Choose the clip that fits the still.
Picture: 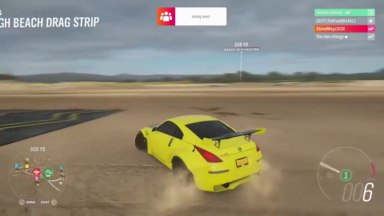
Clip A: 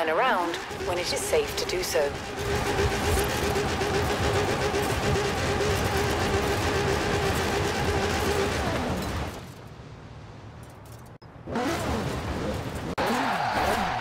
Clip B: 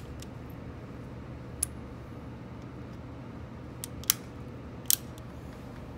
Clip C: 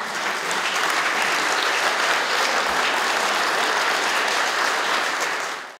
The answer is A